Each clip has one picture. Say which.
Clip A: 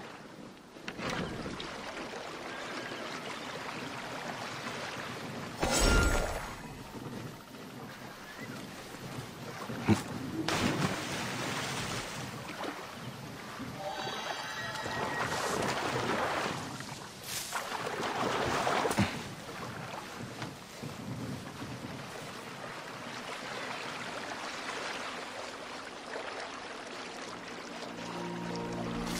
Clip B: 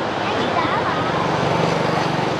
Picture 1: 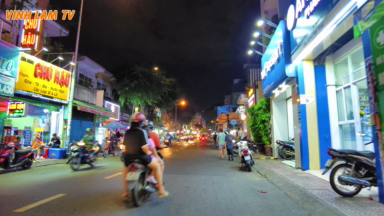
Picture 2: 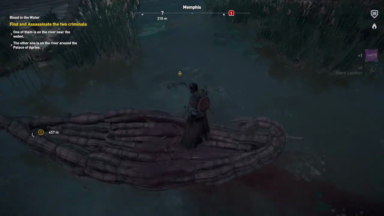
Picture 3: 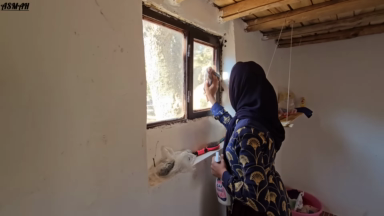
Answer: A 2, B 1